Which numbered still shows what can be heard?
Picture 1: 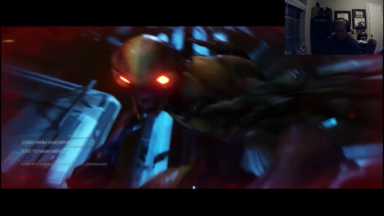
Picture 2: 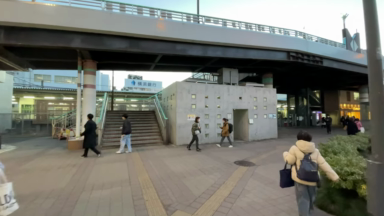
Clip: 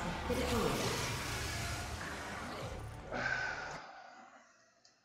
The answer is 1